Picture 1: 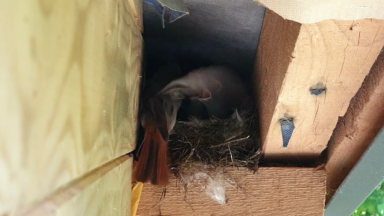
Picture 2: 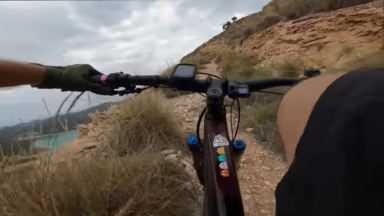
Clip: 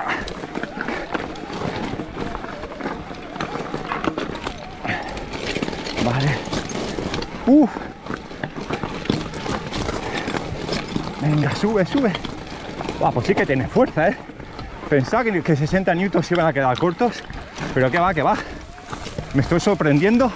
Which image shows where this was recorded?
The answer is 2